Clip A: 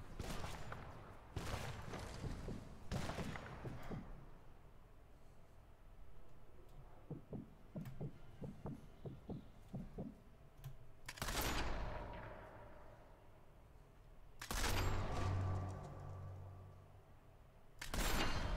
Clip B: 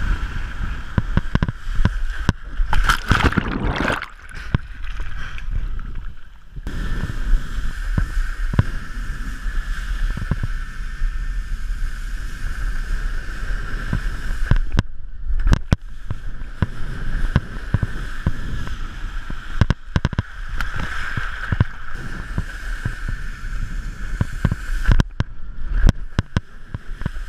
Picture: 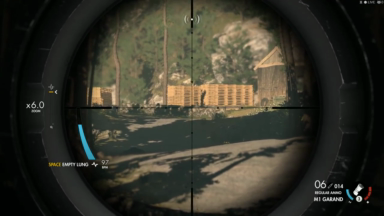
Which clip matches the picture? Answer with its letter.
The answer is A